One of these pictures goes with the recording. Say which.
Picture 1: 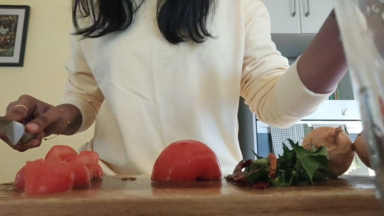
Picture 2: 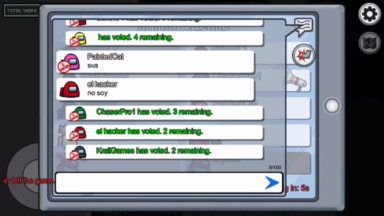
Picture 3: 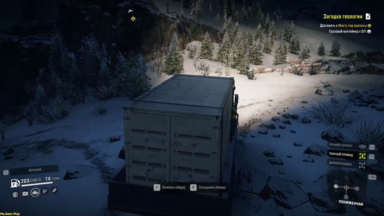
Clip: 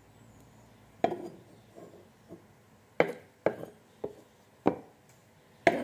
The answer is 1